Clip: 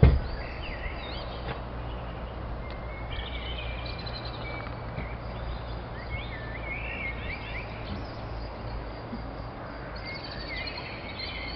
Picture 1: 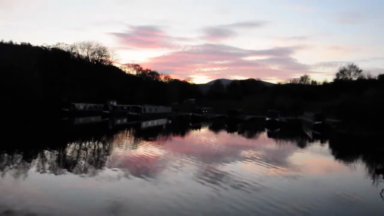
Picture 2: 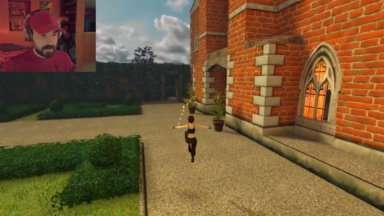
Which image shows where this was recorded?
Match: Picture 1